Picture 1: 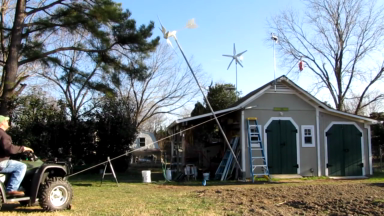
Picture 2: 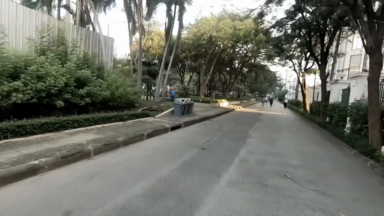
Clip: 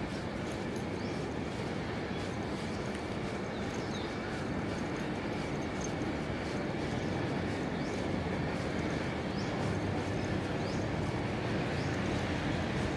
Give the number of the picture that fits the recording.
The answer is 2